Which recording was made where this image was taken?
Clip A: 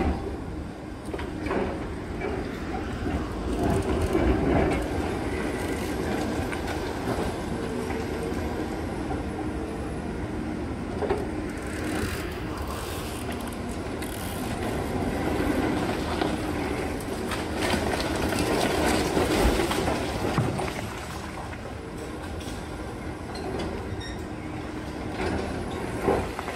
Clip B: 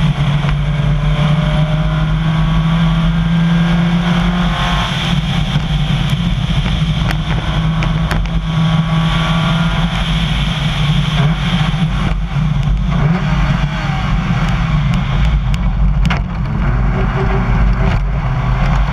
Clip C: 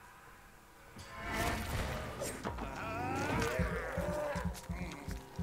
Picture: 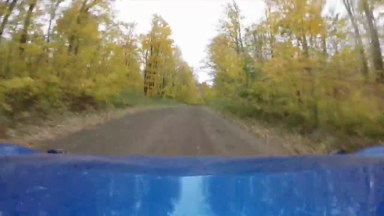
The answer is B